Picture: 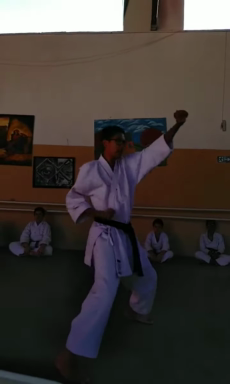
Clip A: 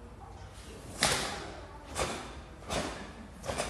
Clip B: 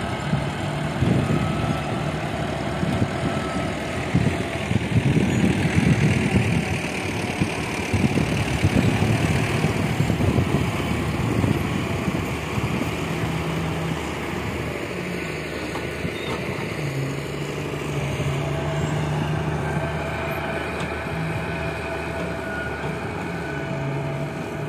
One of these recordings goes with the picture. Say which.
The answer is A